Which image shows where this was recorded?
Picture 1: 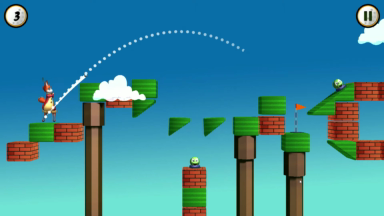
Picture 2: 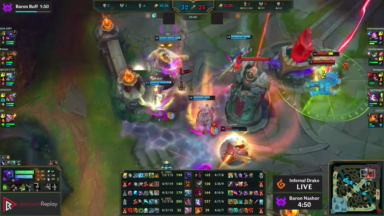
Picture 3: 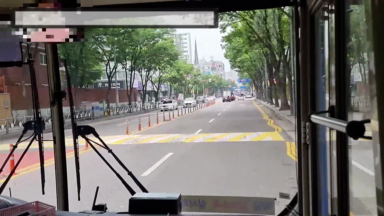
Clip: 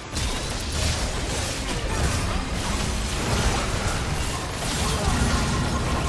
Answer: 2